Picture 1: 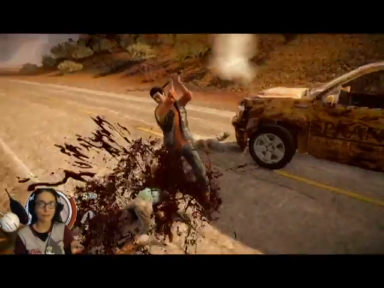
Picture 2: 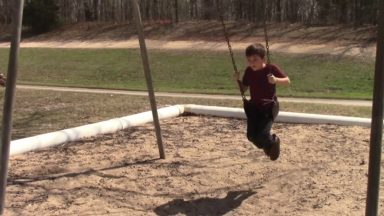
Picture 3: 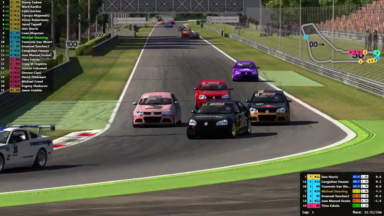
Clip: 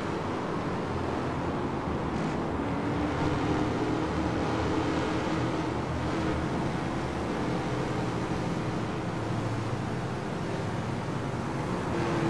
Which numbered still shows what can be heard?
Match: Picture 3